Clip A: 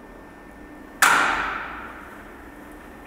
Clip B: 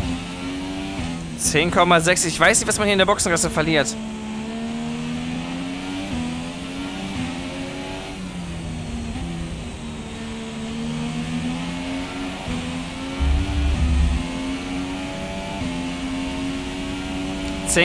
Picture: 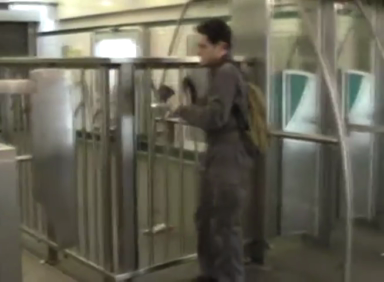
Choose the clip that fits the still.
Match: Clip A